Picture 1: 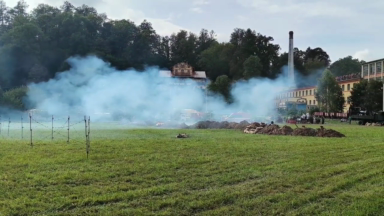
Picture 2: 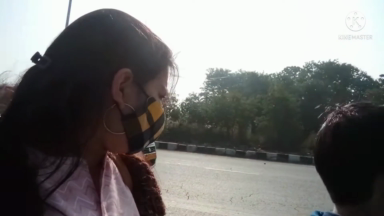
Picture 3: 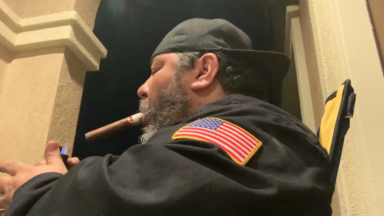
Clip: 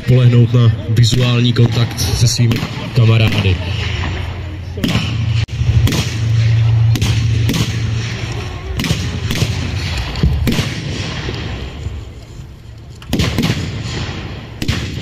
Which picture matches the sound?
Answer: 1